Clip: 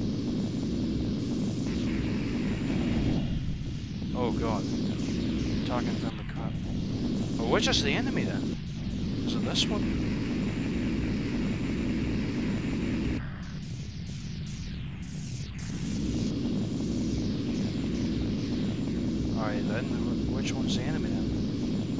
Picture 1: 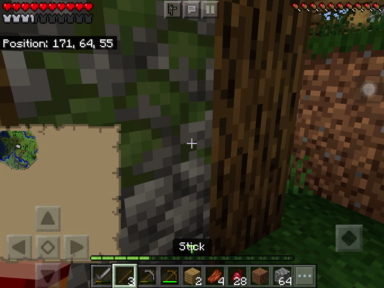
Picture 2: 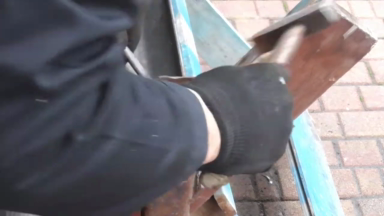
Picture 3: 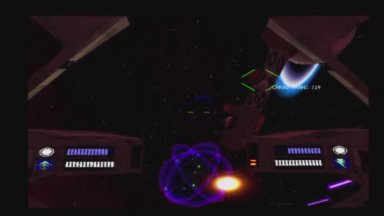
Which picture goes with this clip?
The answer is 3